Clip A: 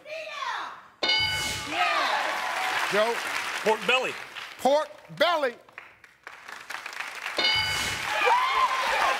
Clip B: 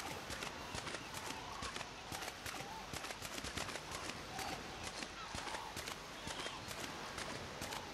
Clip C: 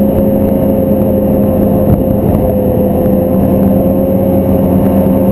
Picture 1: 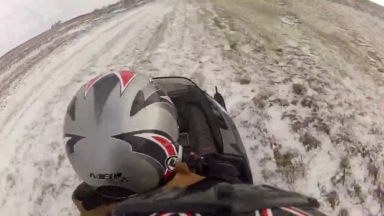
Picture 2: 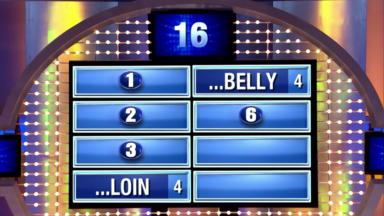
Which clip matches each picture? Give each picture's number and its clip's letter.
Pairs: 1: C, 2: A